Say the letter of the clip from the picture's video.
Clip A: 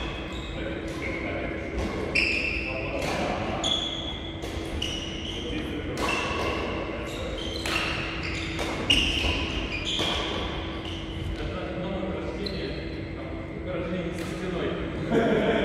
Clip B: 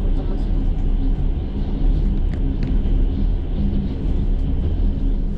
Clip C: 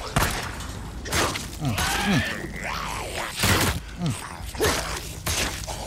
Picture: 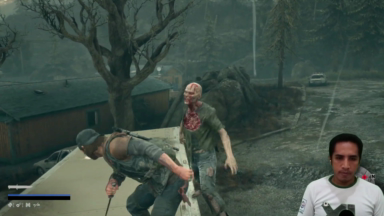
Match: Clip C